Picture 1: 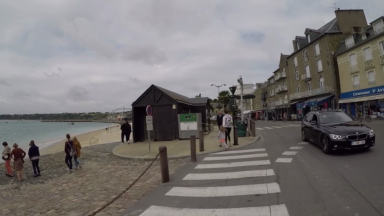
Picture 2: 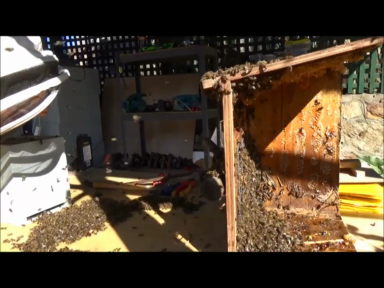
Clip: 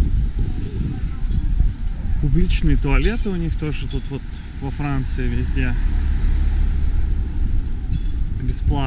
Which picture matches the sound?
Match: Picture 1